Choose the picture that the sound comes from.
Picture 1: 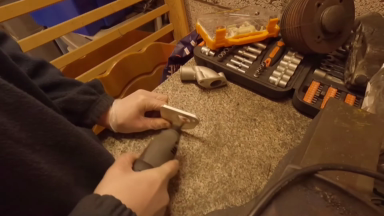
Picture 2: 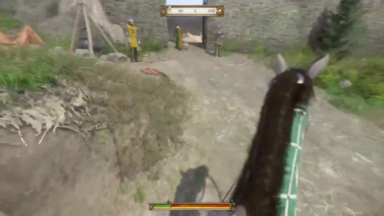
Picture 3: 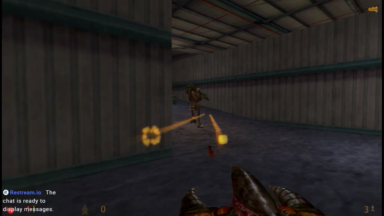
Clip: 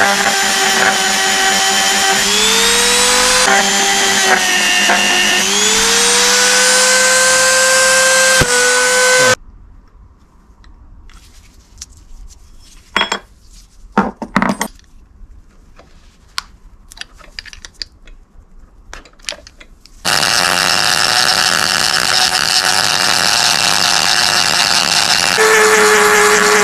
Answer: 1